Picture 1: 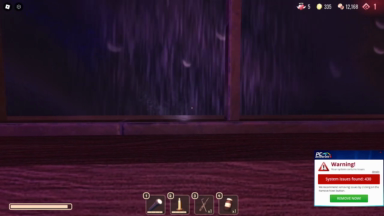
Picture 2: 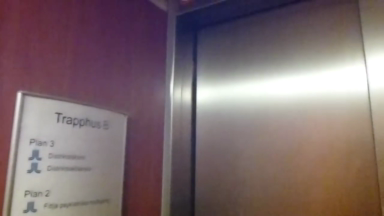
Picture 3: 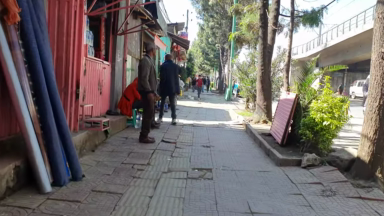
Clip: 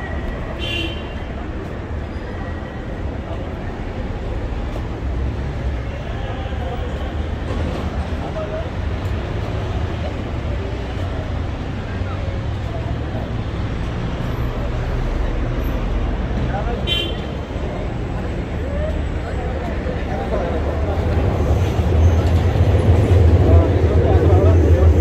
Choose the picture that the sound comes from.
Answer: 3